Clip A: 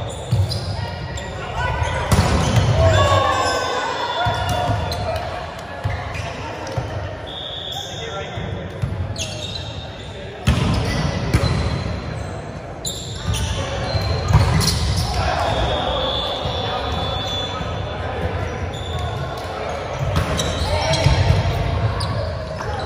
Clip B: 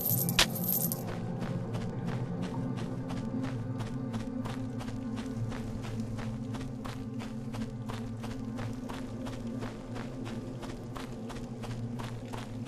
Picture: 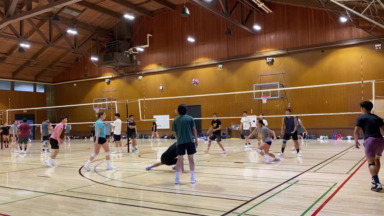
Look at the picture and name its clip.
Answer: A